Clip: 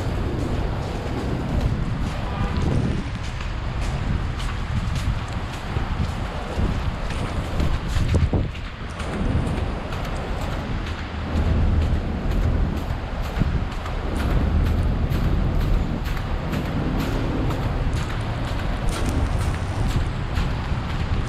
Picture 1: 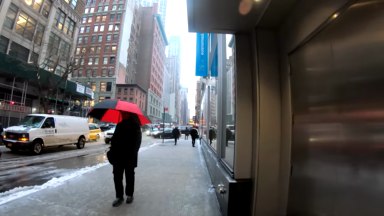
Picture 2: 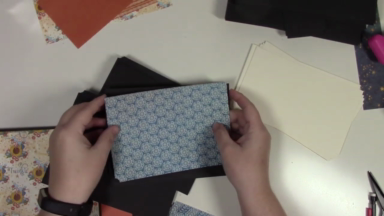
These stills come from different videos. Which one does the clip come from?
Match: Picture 1